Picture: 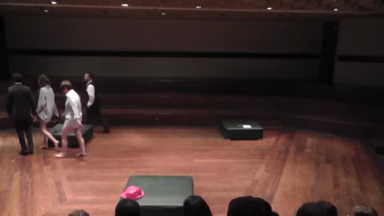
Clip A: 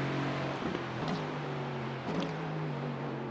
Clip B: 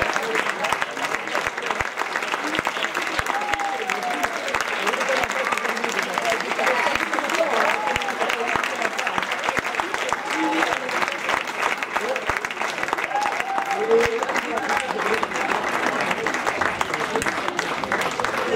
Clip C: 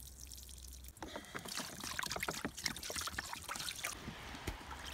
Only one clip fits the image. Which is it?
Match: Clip B